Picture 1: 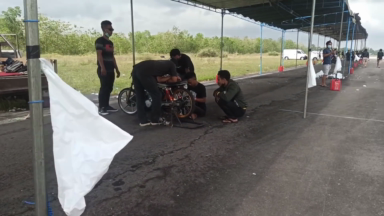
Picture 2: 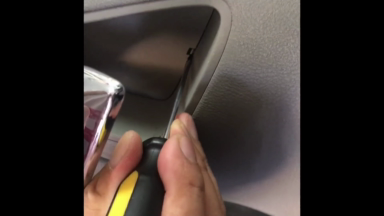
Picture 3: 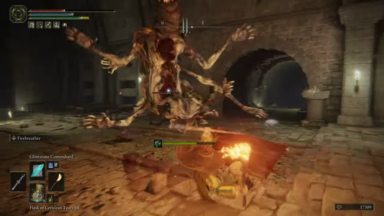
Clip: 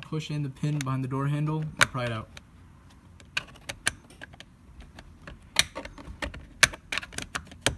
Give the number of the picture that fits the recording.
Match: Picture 2